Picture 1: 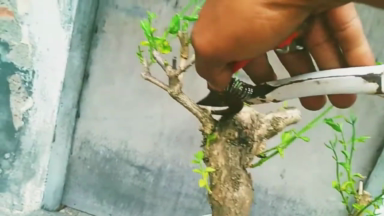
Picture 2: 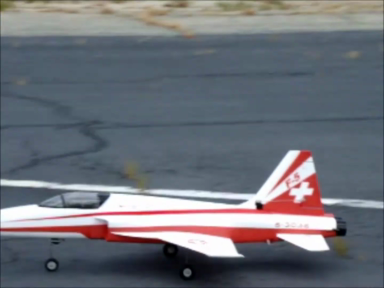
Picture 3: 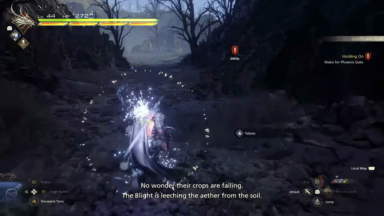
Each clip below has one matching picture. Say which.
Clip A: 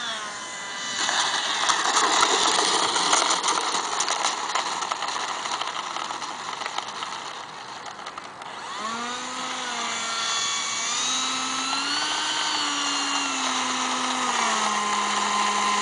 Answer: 2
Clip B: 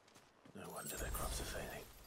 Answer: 3